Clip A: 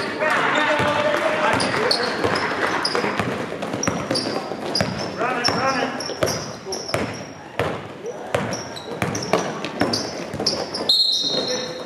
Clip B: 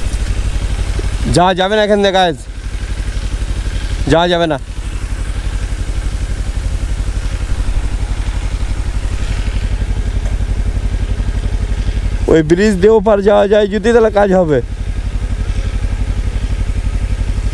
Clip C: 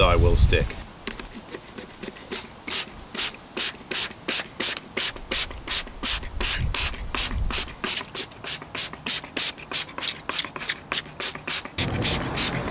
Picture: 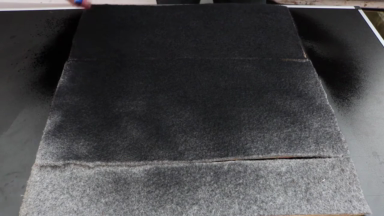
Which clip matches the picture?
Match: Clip C